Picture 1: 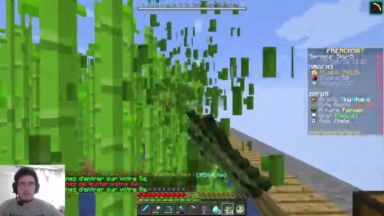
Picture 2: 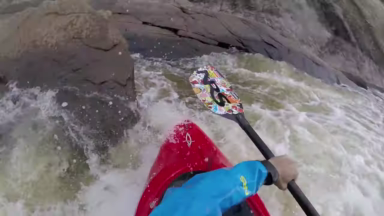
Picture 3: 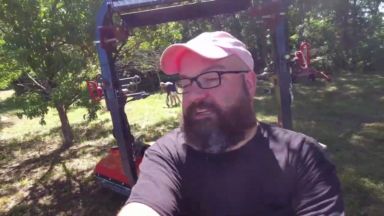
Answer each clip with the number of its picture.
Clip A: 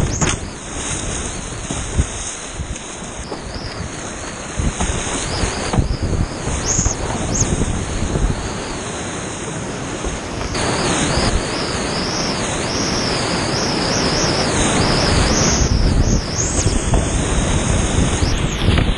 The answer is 2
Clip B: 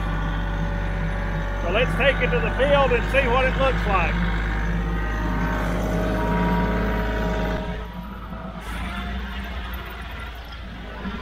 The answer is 3